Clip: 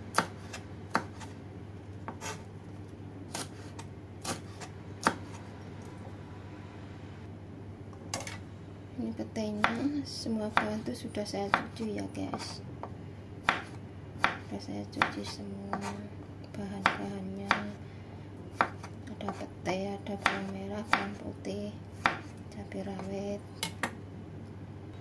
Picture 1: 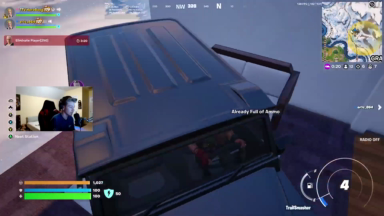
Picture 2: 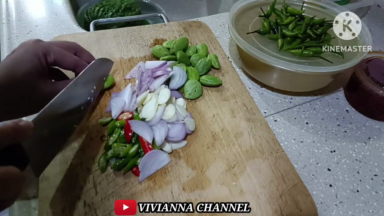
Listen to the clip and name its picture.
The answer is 2